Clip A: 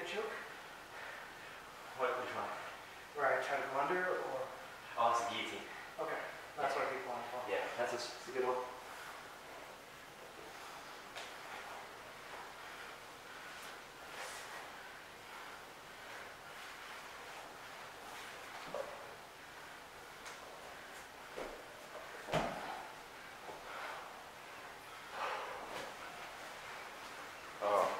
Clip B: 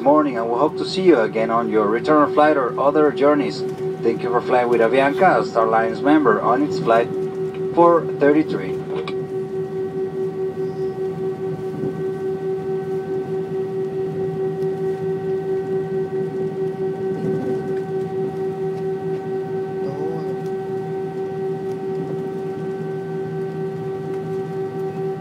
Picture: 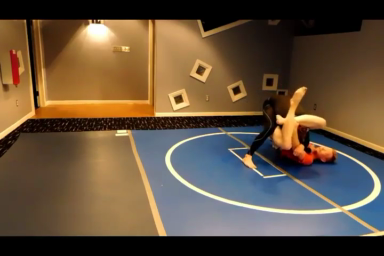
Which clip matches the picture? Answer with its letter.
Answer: A